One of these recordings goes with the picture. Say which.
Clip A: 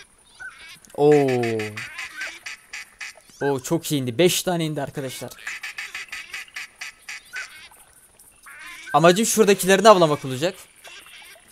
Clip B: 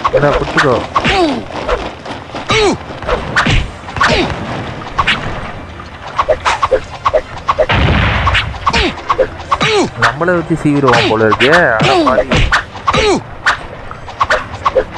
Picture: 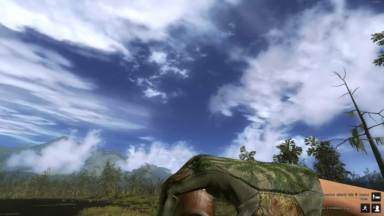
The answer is A